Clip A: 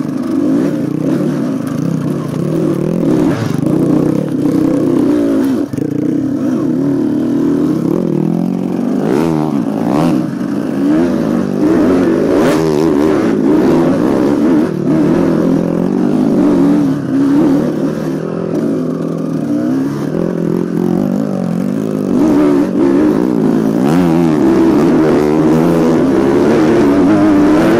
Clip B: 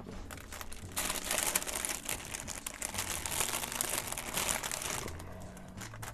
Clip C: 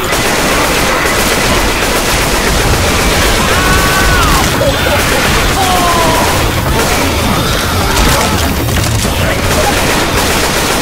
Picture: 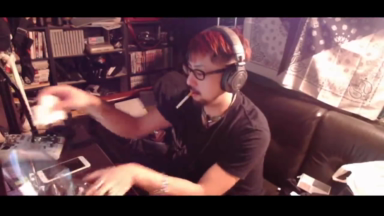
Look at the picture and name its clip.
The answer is B